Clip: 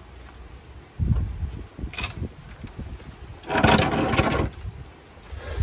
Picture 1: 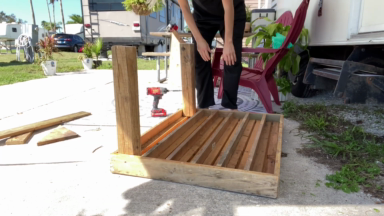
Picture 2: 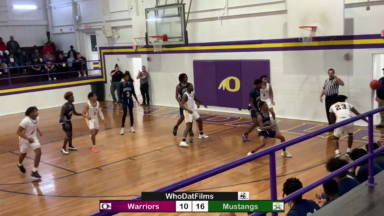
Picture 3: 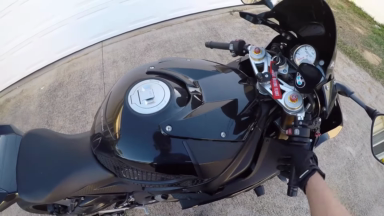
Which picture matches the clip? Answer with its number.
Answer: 1